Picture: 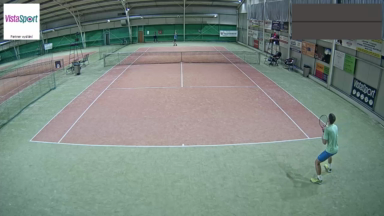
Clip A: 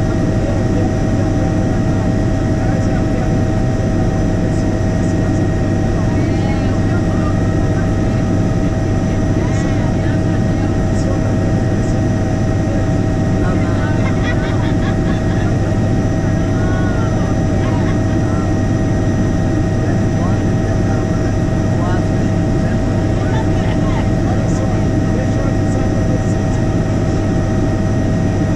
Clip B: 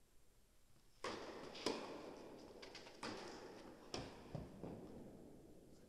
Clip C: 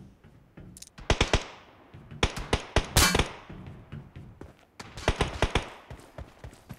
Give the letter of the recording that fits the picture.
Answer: B